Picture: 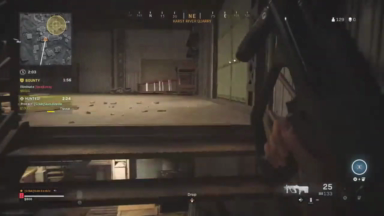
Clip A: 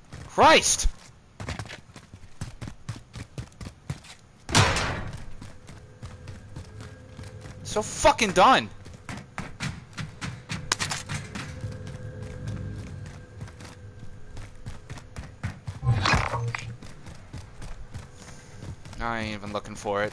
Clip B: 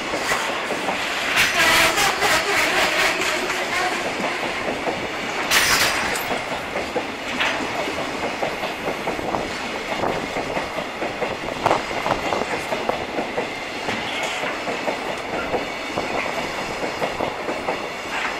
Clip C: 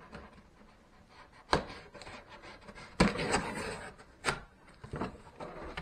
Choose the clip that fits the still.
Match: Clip A